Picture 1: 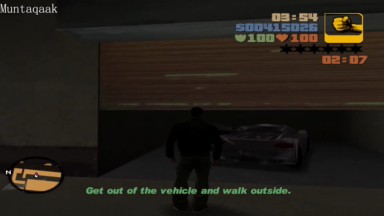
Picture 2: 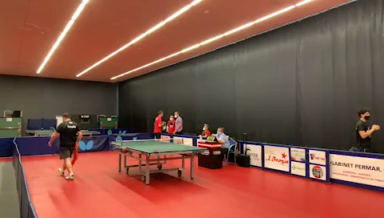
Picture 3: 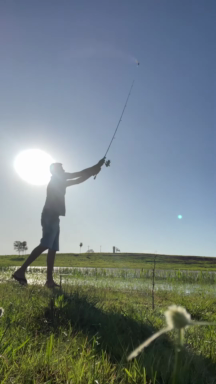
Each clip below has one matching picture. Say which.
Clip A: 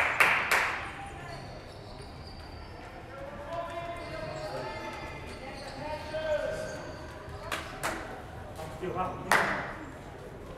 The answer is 2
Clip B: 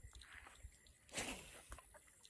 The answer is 3